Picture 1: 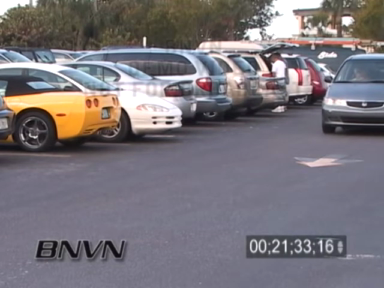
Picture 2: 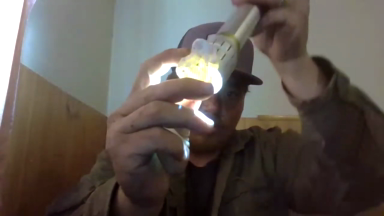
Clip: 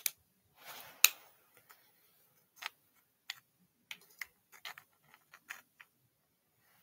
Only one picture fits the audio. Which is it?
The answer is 2